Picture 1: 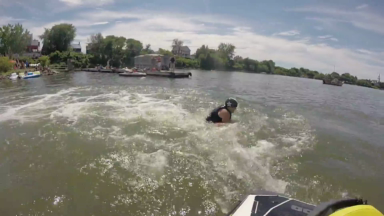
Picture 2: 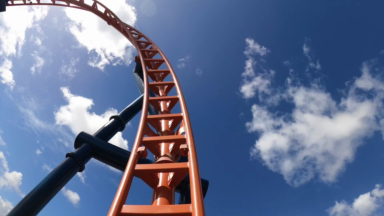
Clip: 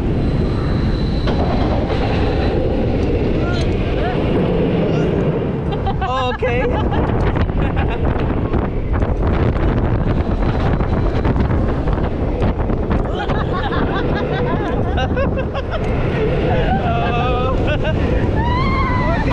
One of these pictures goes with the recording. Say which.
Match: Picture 2